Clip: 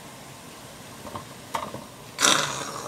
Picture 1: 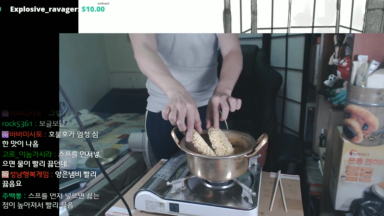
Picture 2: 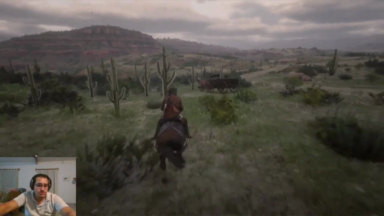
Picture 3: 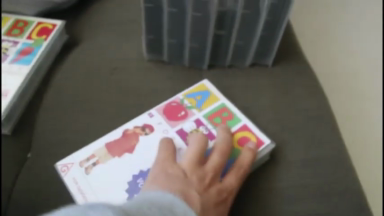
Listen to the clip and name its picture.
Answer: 1